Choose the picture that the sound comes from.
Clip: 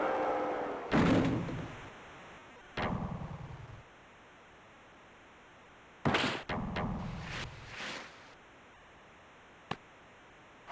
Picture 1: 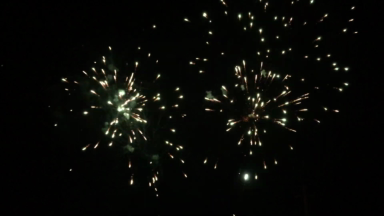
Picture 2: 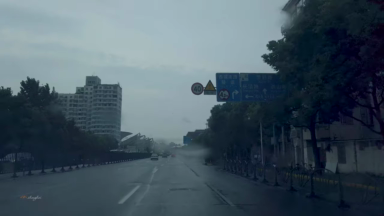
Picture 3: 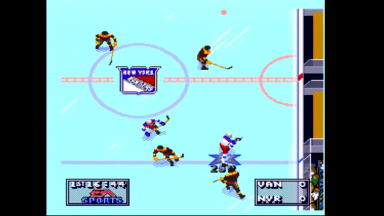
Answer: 3